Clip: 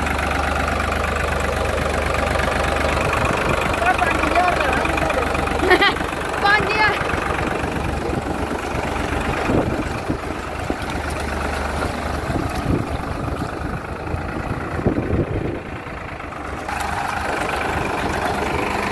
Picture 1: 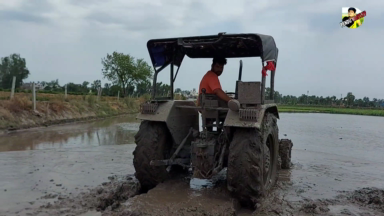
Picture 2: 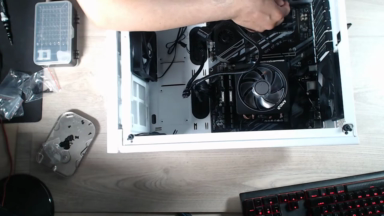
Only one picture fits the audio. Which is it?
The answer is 1